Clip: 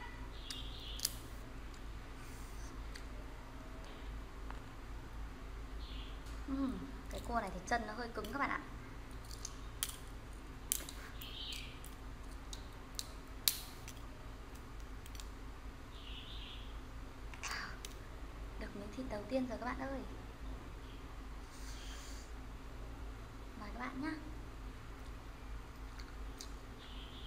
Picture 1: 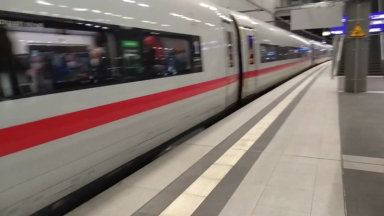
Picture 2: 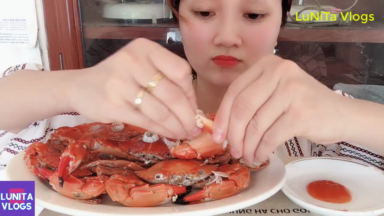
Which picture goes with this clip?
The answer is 2